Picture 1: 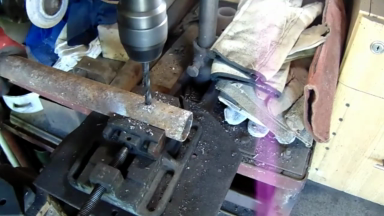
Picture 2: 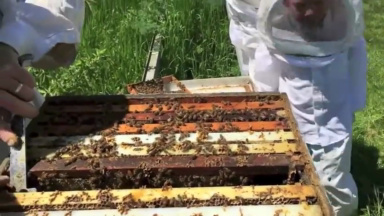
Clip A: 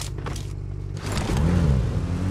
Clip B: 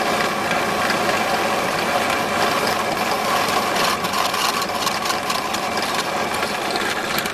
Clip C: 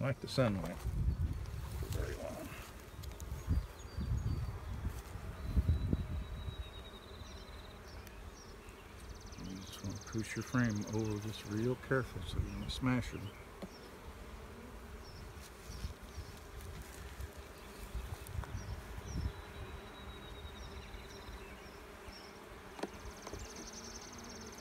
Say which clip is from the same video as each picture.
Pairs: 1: B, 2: C